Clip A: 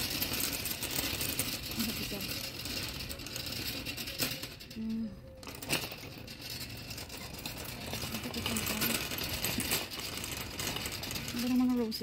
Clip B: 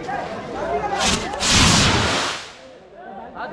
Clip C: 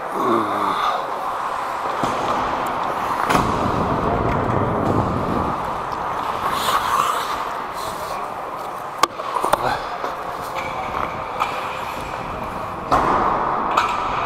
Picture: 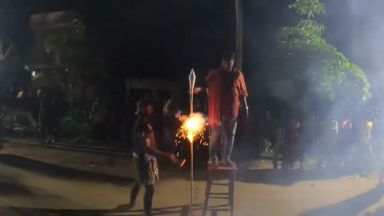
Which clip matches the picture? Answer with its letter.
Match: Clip B